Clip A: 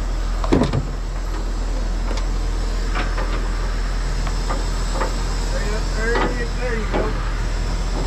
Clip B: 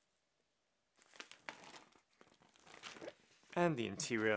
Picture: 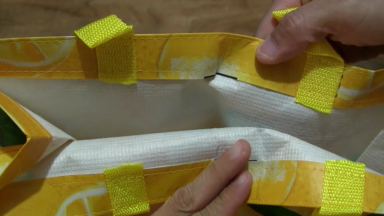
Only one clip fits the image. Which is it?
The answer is B